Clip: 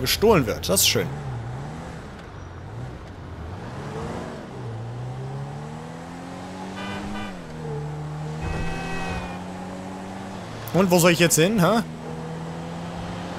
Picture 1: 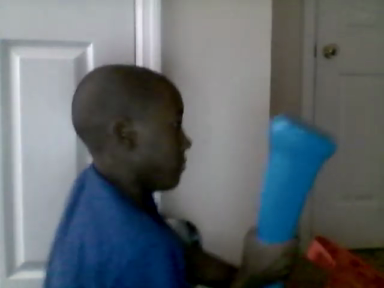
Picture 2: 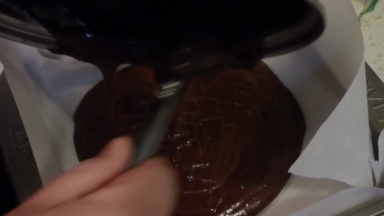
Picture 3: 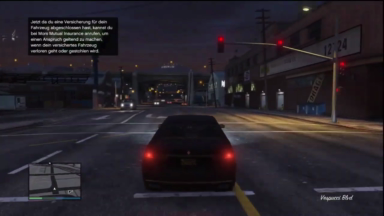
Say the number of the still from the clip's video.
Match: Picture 3